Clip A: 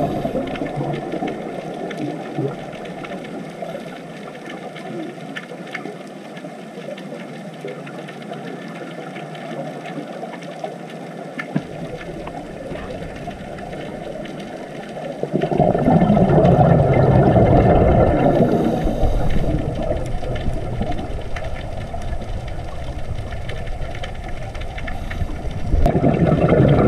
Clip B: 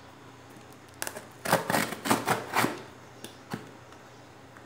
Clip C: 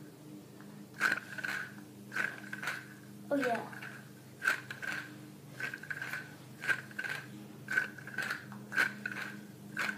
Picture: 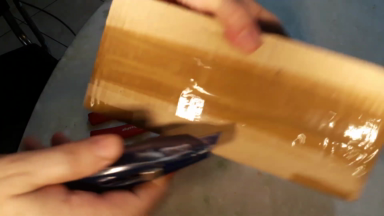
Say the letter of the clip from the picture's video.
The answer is B